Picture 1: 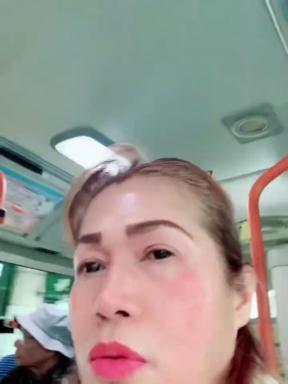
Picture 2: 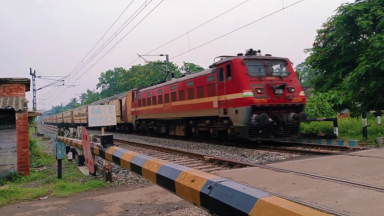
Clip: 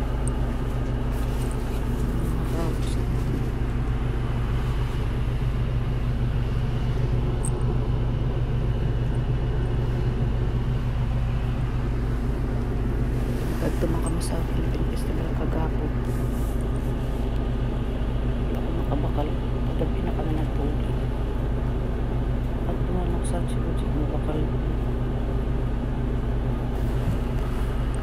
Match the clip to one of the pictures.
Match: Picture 1